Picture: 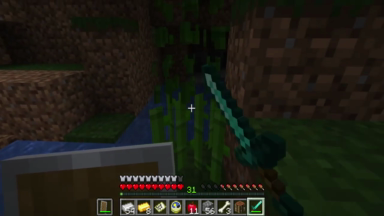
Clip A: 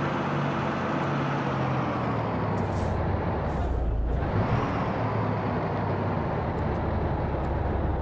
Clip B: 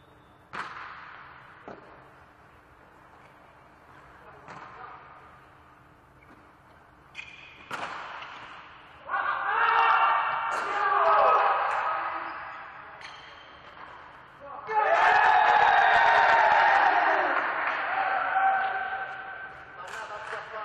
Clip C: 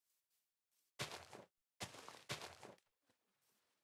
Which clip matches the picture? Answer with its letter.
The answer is C